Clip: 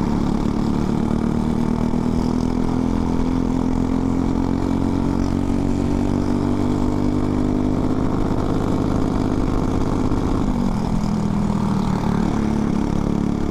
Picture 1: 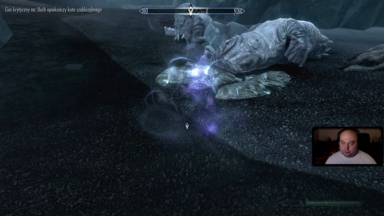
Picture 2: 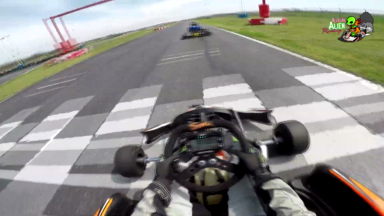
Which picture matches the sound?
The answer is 2